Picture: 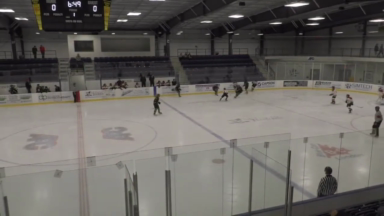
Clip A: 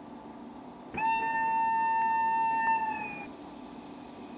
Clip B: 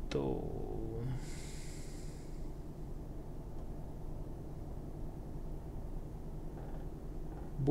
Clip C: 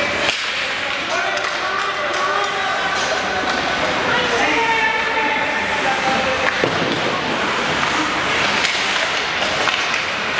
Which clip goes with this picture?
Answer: C